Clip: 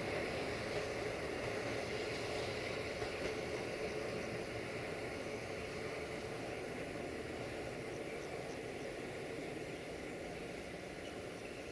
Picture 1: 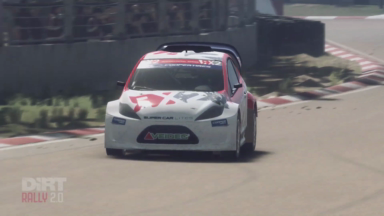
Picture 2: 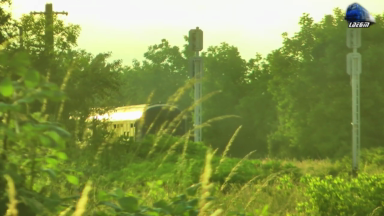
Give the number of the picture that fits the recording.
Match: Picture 2